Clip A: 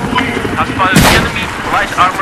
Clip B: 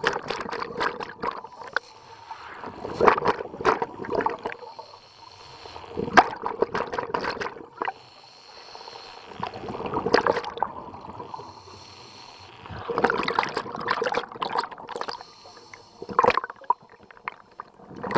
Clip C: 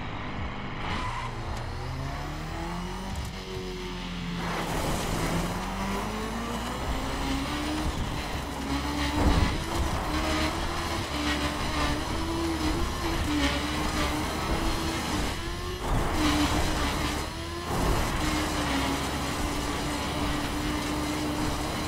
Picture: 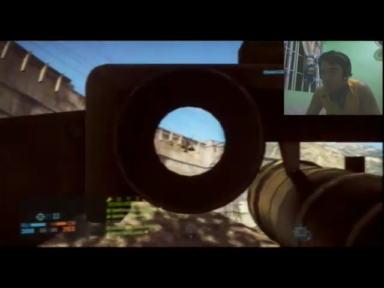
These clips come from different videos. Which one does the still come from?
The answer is A